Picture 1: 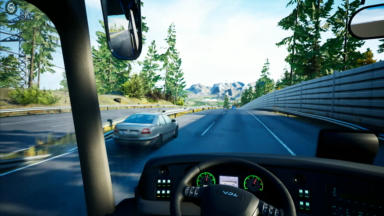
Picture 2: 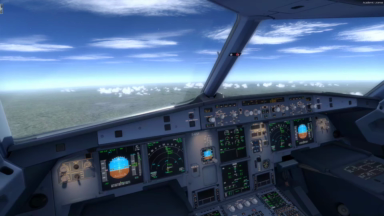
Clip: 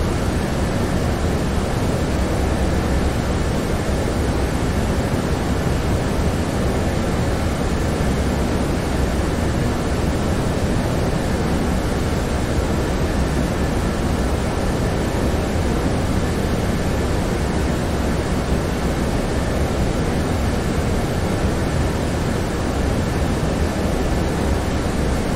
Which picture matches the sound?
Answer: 2